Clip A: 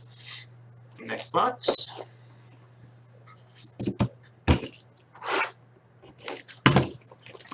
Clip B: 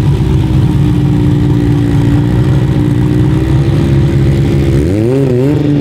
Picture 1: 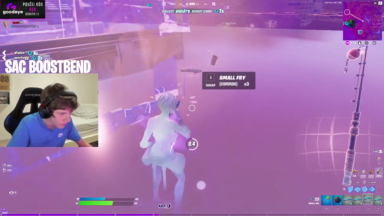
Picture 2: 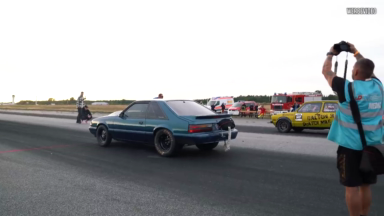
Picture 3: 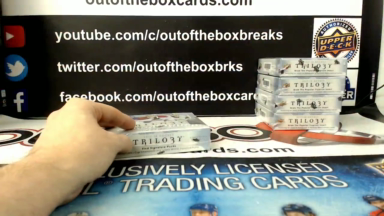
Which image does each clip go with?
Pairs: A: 3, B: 2